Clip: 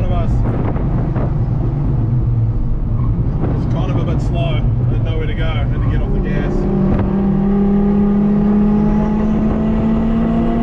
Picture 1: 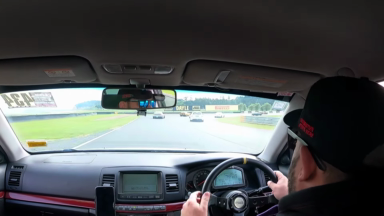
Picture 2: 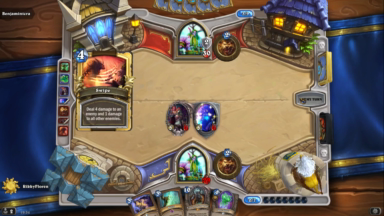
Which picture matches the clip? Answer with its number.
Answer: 1